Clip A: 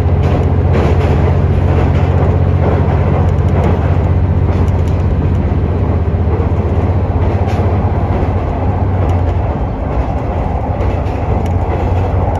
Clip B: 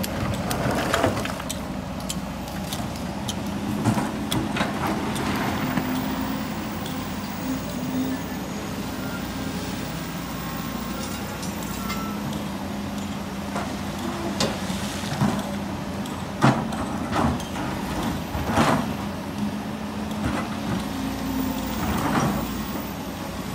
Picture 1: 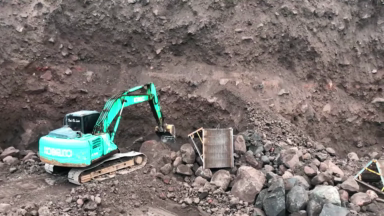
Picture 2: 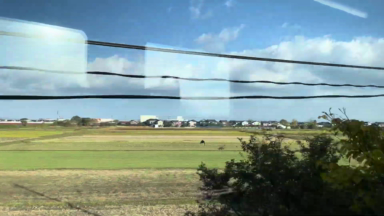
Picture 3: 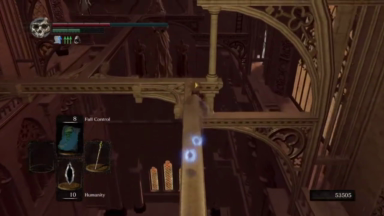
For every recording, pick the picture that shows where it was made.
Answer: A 2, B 1